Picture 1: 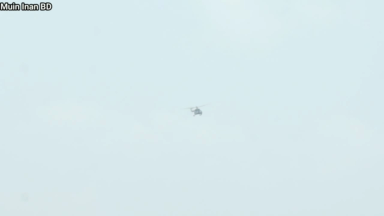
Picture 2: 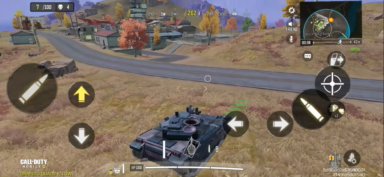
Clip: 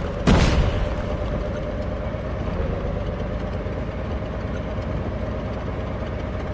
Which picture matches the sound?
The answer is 2